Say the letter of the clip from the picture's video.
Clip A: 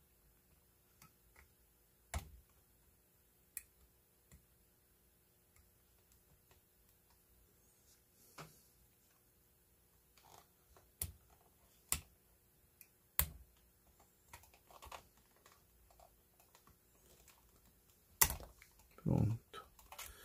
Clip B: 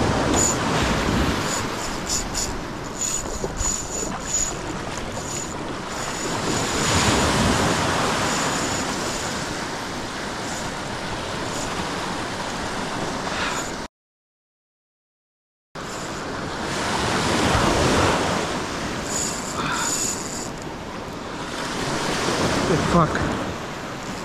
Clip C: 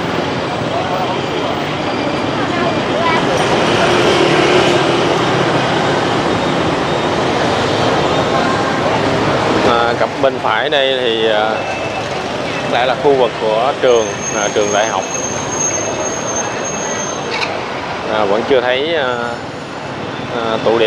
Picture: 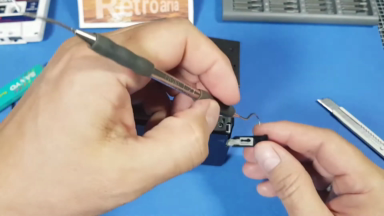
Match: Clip A